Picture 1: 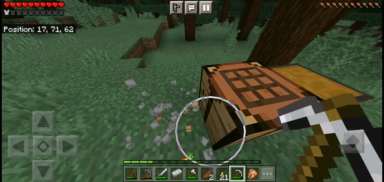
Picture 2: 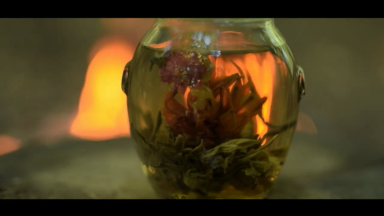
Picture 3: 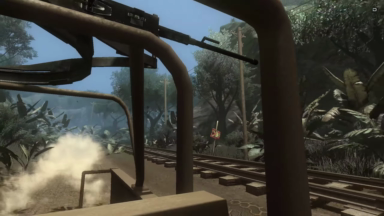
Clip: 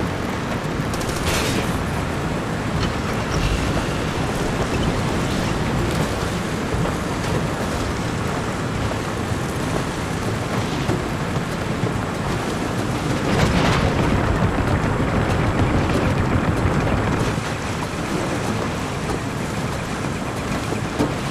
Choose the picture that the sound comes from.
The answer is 3